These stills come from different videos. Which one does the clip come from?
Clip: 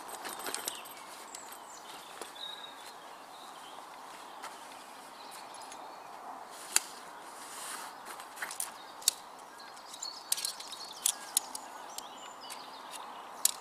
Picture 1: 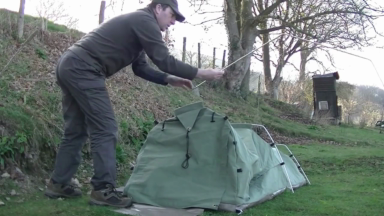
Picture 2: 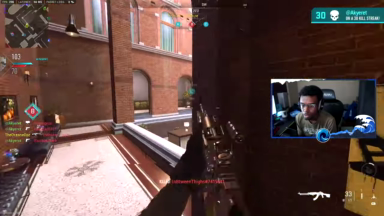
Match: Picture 1